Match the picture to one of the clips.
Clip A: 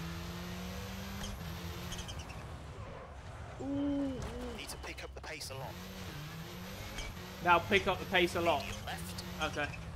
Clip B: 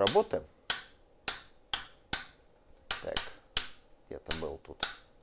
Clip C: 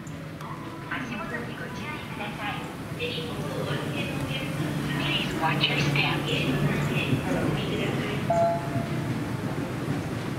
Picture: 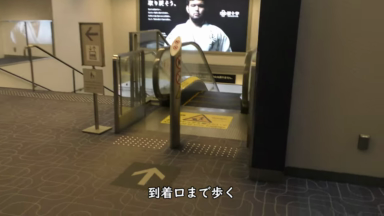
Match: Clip C